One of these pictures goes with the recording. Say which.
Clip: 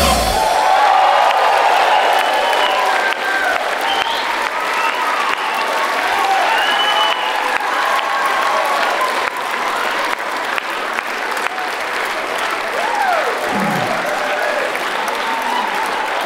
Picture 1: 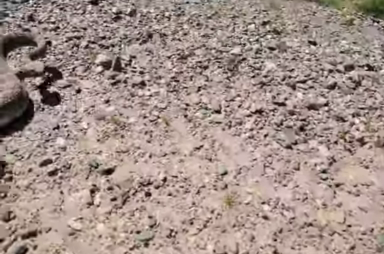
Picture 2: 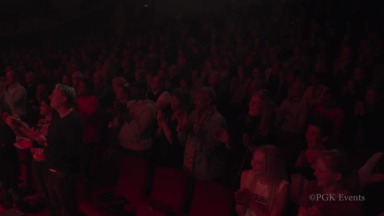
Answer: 2